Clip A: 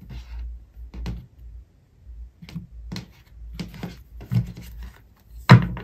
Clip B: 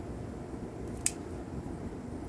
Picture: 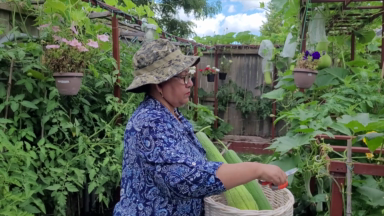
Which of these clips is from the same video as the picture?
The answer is B